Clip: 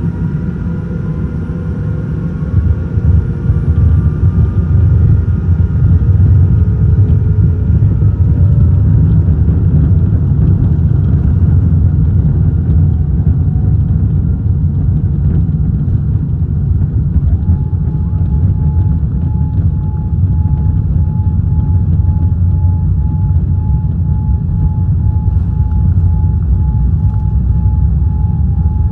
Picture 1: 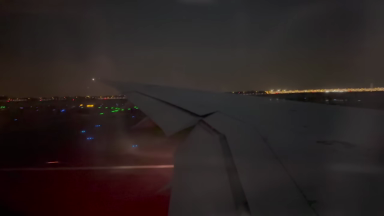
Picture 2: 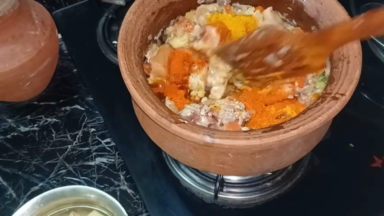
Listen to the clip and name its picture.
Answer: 1